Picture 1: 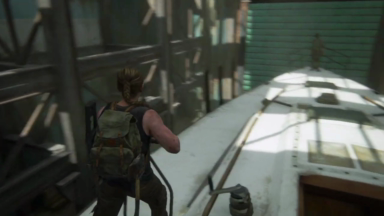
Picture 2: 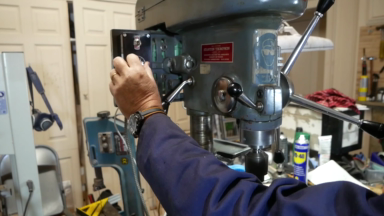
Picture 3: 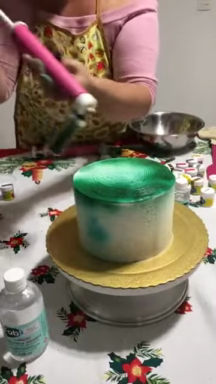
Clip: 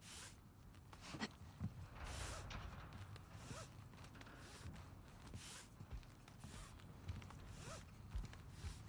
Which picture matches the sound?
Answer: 1